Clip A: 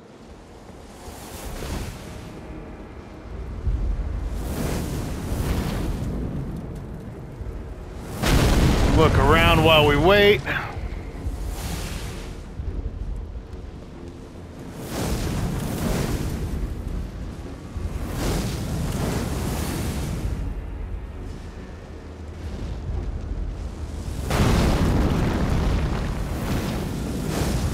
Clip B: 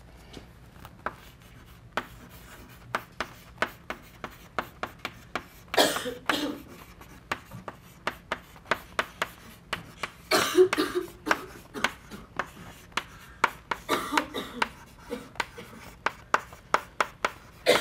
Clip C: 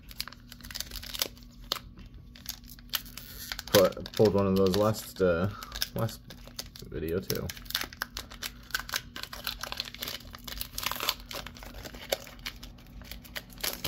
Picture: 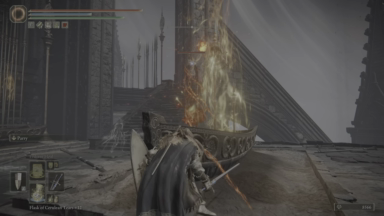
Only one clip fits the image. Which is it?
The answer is A